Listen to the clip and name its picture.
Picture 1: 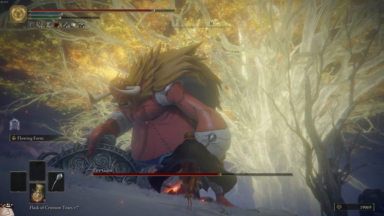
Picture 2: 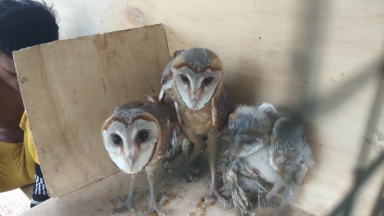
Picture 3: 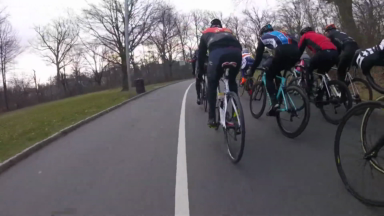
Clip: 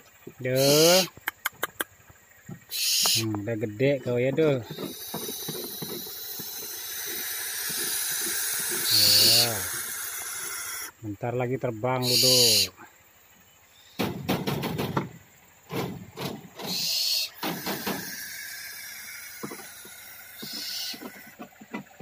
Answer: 2